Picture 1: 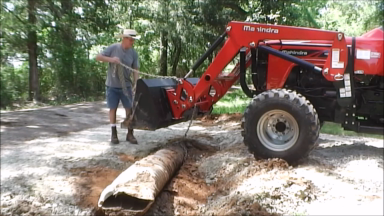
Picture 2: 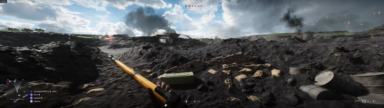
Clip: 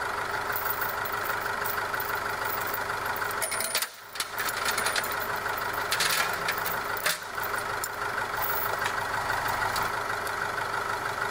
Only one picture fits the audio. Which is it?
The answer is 1